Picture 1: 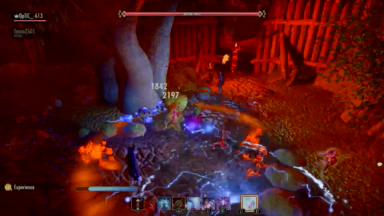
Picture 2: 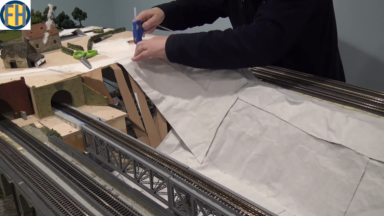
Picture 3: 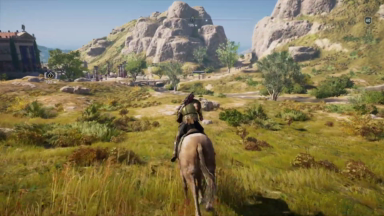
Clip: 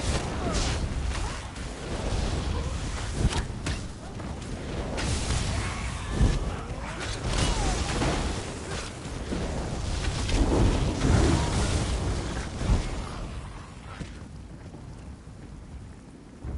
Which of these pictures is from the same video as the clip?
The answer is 1